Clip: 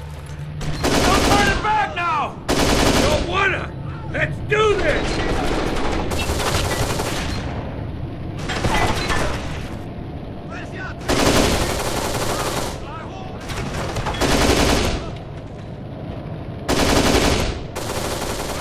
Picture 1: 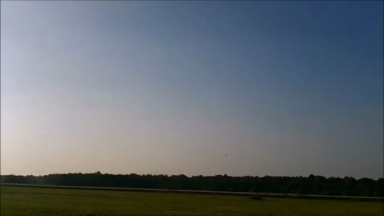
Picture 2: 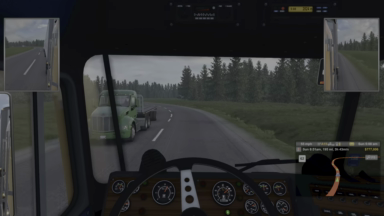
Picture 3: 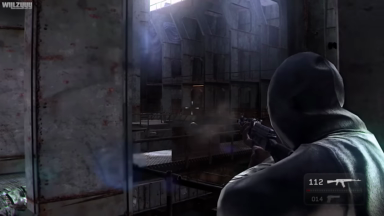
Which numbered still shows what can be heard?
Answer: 3